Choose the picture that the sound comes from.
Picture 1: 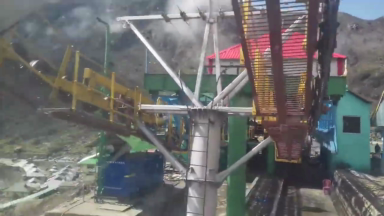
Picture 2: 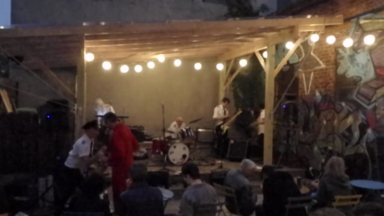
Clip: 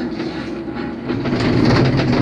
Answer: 1